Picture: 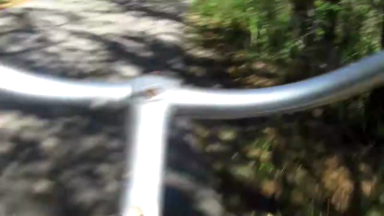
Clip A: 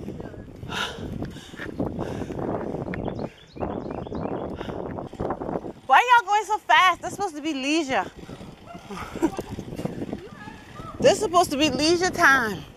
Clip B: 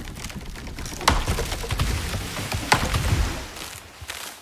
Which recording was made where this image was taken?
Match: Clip A